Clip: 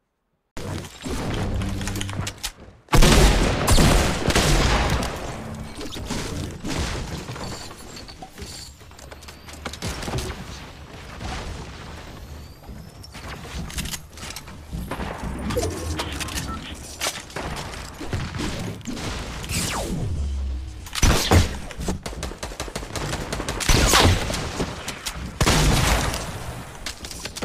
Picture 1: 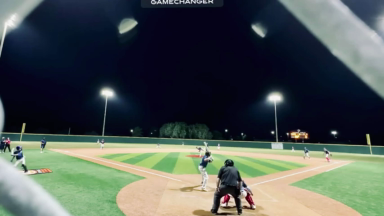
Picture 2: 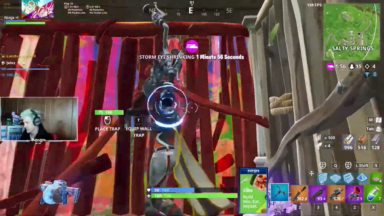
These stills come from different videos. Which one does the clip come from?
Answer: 2